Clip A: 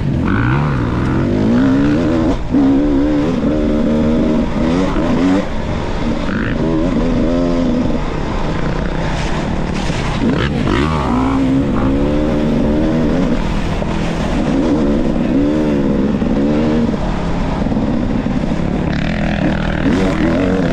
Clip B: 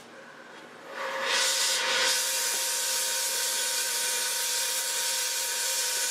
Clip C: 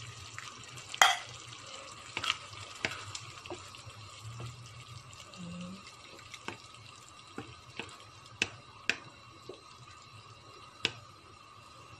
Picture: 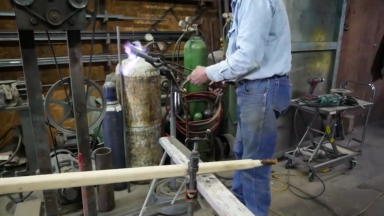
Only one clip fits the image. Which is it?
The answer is B